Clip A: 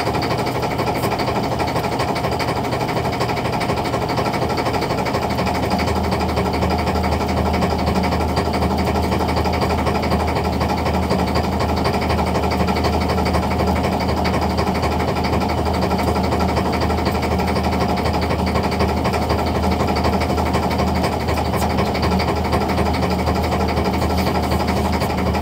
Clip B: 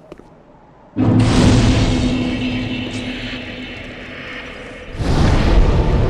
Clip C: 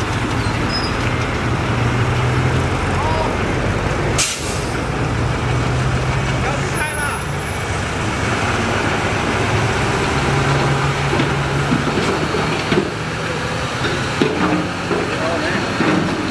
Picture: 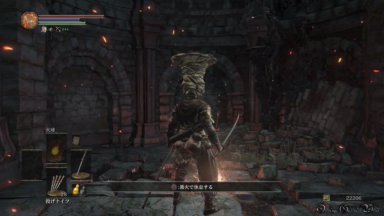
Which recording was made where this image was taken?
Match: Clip B